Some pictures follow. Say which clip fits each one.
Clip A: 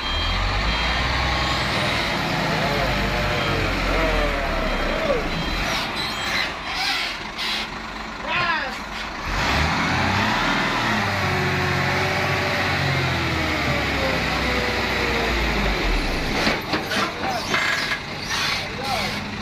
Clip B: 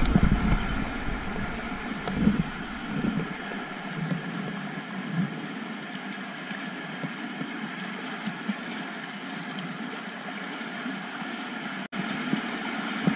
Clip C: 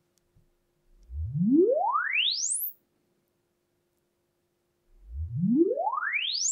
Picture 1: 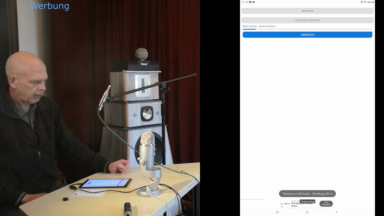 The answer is C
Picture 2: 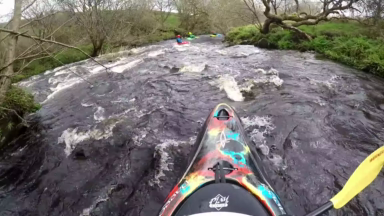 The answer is B